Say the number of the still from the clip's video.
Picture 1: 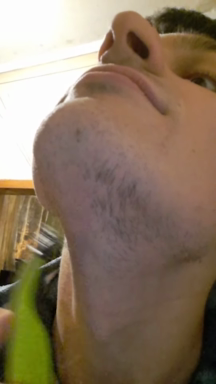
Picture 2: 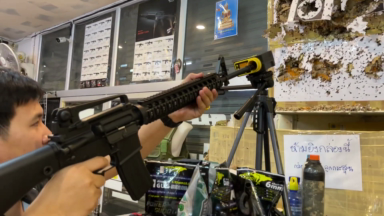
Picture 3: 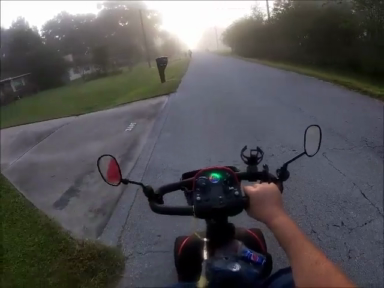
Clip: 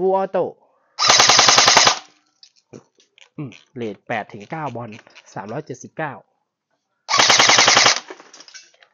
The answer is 2